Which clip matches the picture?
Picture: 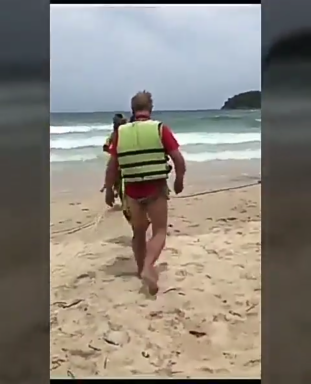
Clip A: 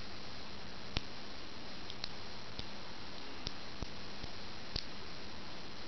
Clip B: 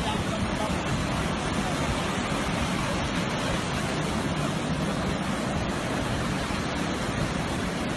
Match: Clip B